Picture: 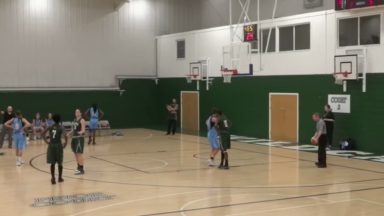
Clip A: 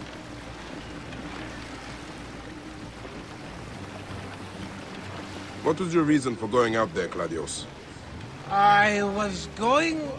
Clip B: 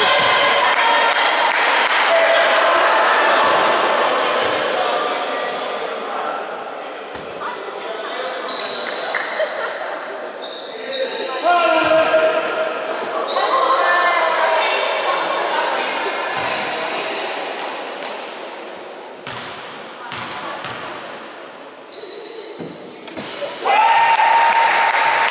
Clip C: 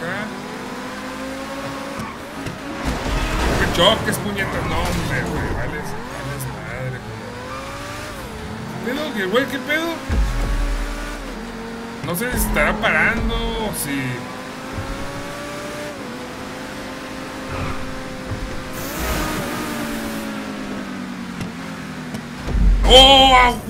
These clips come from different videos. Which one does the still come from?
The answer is B